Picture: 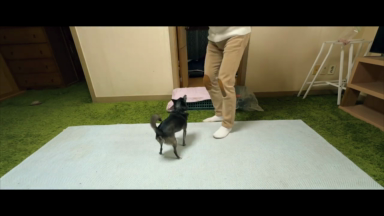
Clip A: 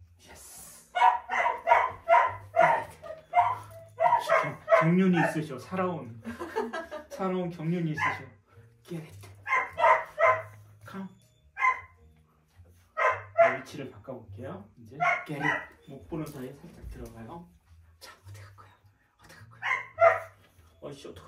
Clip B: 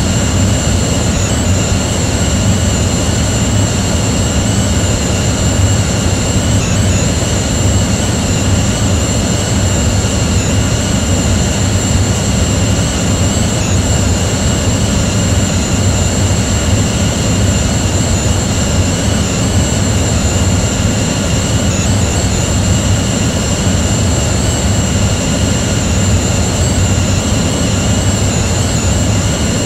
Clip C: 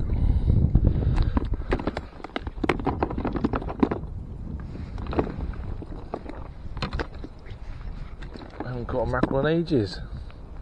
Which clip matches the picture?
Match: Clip A